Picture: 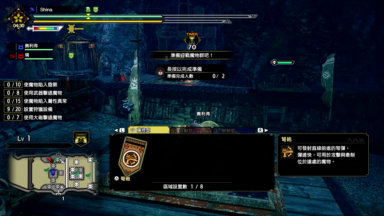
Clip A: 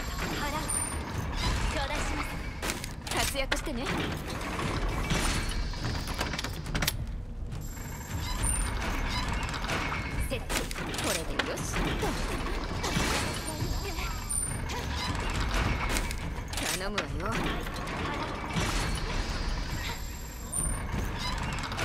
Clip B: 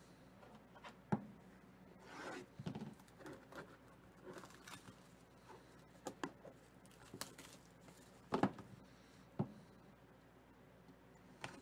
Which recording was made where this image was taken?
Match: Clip A